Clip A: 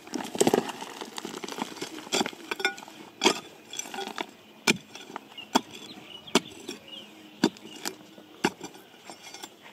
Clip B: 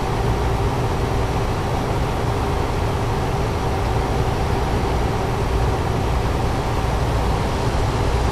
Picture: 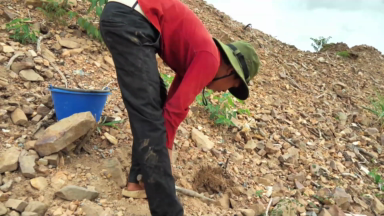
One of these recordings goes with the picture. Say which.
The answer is A